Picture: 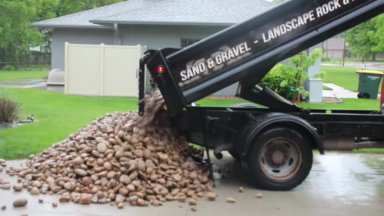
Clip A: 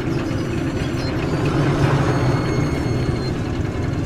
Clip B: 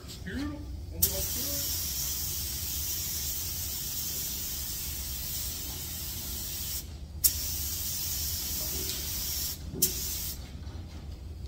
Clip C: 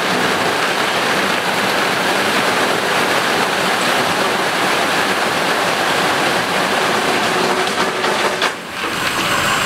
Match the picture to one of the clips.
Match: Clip C